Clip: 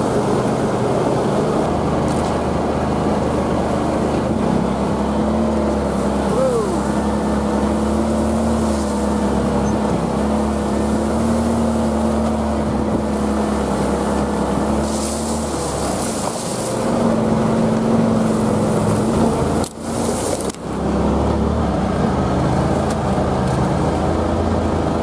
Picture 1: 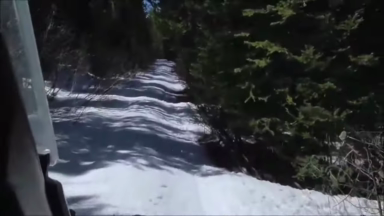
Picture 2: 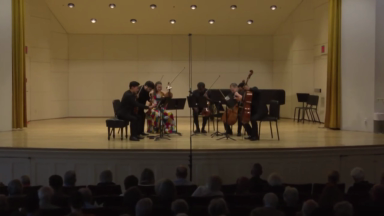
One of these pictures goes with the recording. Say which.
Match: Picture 1